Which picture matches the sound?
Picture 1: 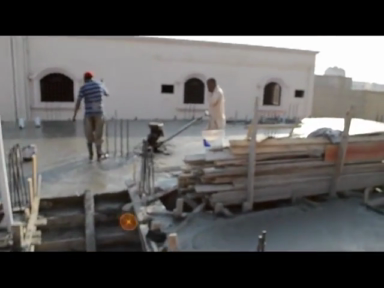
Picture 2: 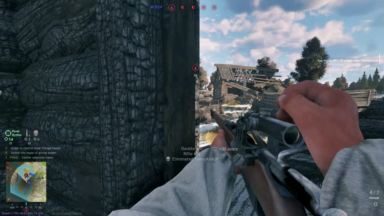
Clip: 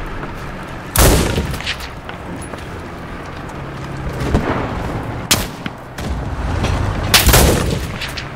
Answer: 2